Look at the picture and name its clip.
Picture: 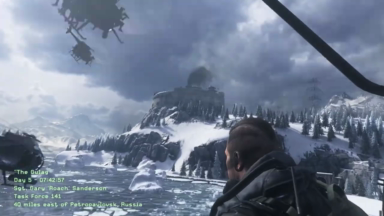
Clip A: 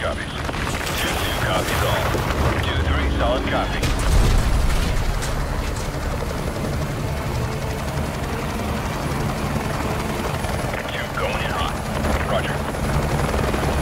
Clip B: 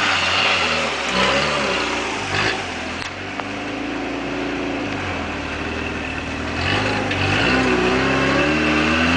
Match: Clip A